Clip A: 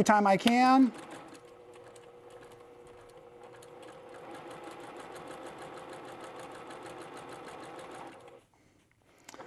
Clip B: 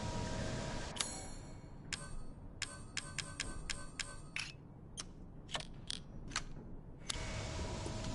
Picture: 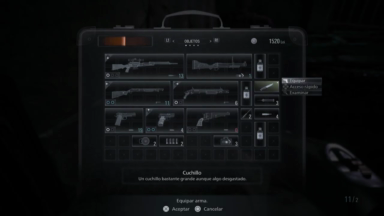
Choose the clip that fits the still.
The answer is B